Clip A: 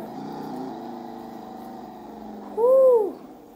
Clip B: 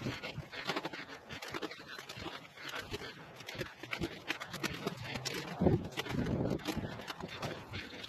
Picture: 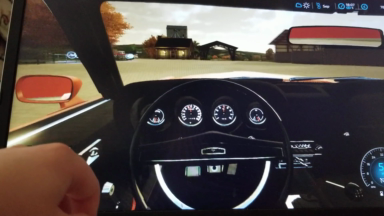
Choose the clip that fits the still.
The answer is A